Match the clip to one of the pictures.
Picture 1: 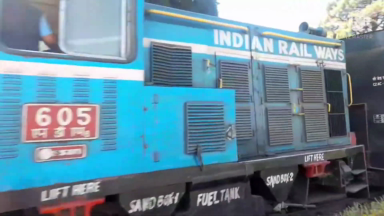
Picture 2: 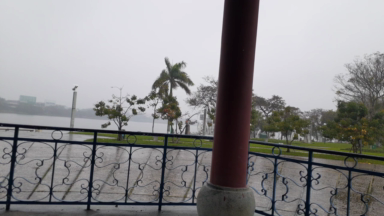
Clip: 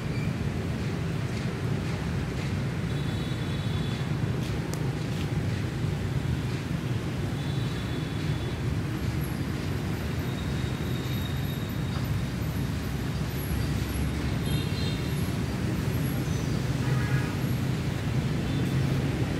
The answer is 2